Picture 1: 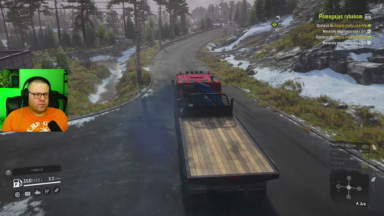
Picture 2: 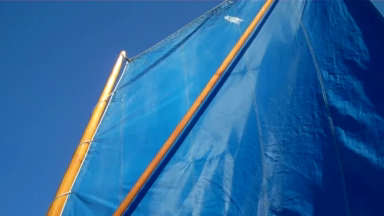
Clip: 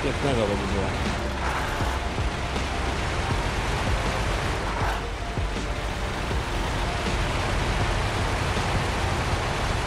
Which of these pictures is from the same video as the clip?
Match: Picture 1